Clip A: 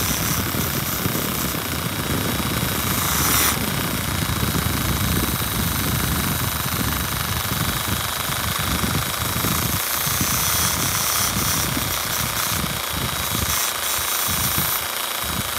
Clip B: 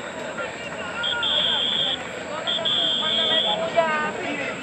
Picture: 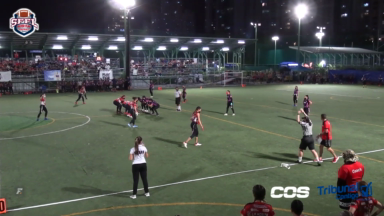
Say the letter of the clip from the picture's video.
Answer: B